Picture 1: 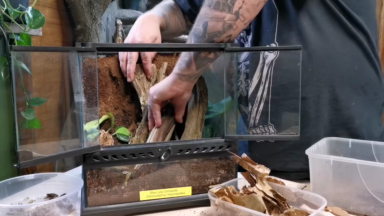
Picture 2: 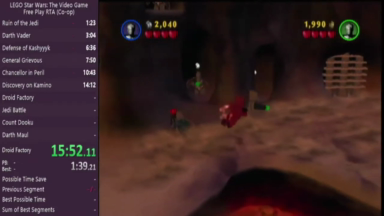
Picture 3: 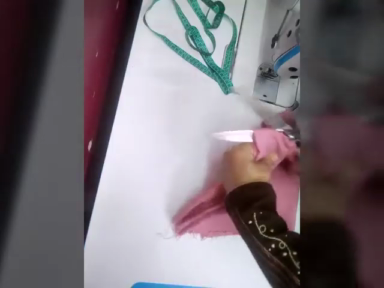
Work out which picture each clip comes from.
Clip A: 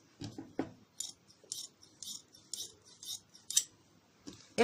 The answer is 3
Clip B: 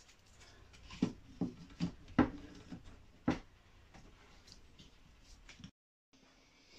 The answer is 1